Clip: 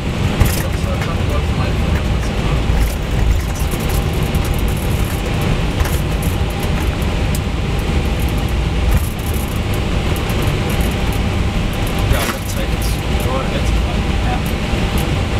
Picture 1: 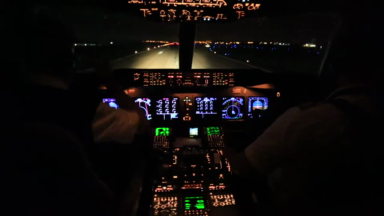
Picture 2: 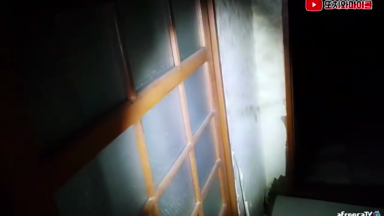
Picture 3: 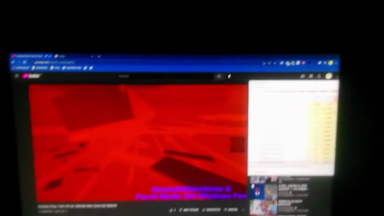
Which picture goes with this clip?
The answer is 1